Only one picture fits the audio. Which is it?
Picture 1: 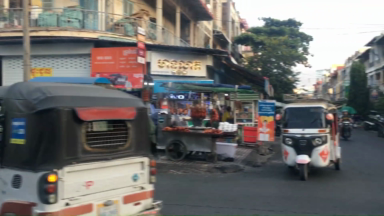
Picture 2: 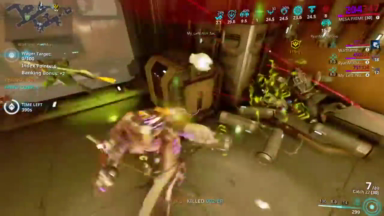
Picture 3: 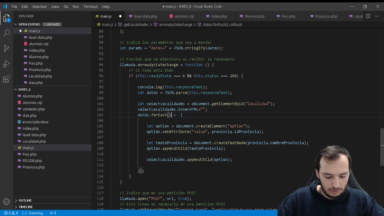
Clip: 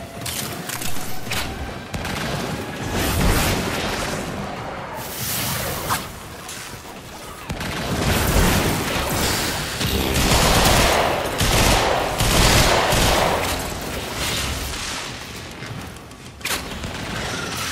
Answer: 2